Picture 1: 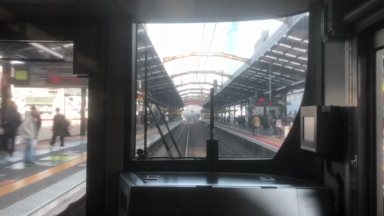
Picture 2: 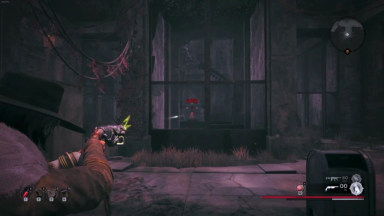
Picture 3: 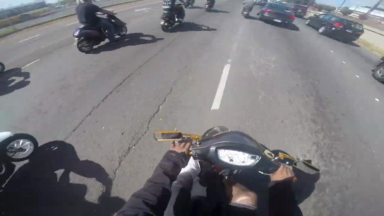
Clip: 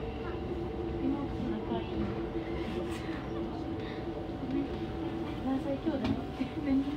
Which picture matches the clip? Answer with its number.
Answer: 1